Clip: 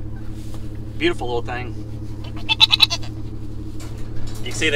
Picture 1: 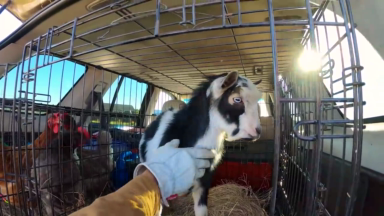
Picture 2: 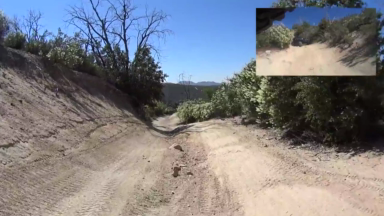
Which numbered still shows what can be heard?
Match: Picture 1